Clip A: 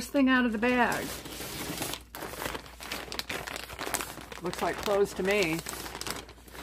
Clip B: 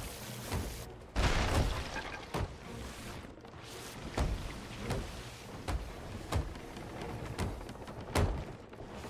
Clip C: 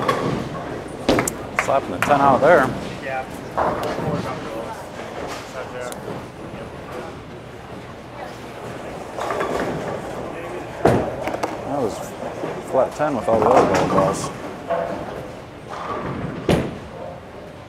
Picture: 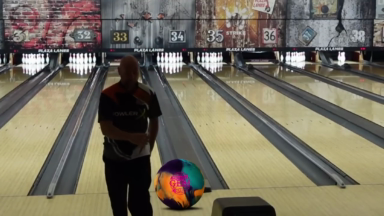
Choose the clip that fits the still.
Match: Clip C